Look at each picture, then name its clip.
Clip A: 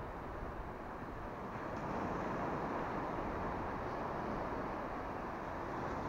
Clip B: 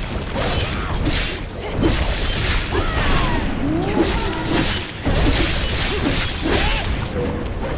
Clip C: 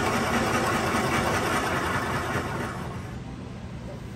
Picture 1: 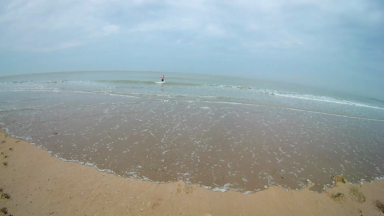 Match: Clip A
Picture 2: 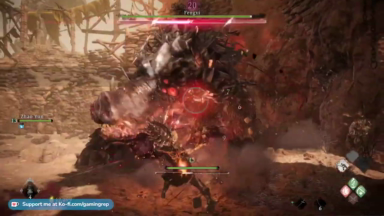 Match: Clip B